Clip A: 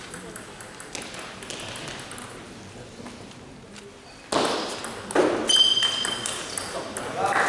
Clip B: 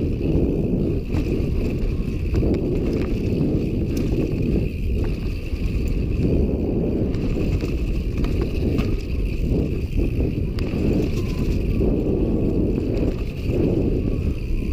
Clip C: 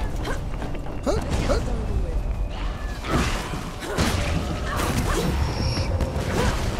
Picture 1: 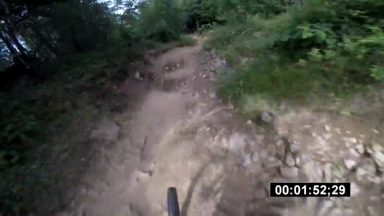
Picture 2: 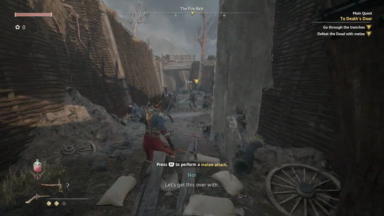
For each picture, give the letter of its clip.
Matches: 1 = B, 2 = C